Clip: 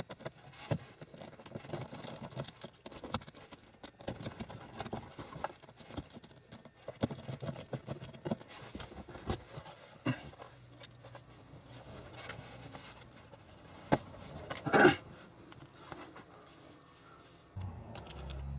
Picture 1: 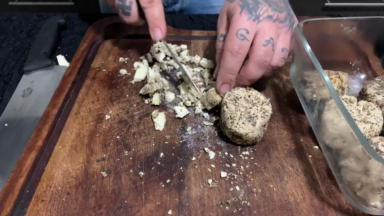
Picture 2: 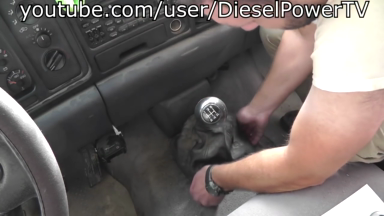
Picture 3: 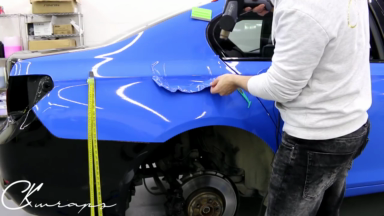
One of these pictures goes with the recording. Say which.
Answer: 2